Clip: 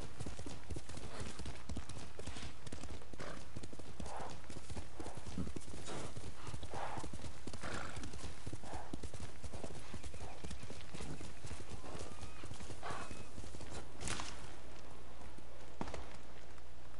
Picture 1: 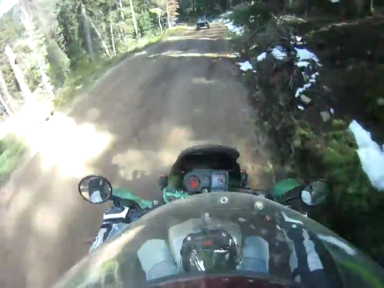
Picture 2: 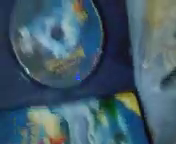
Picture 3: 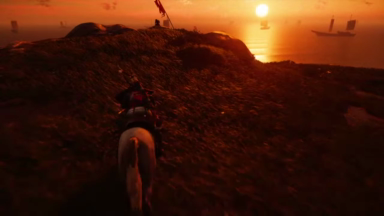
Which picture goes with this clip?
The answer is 3